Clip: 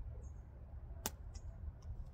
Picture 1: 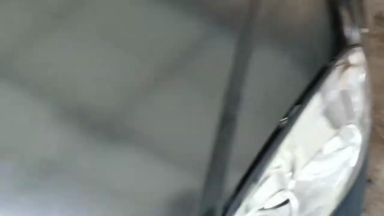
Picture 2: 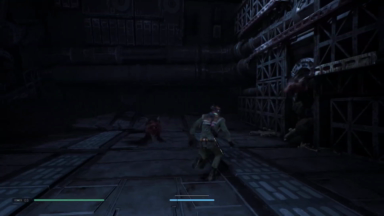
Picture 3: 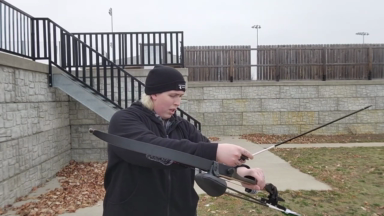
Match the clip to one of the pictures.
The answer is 3